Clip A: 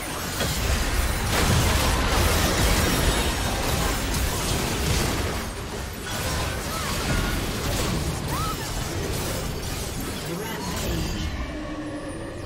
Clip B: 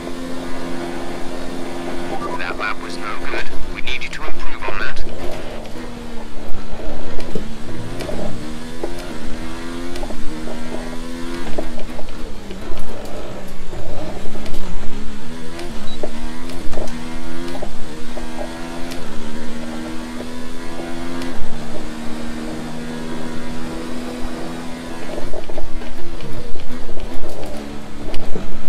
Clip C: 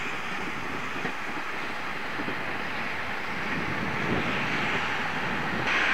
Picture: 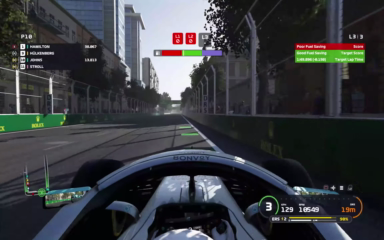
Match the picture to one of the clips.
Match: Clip B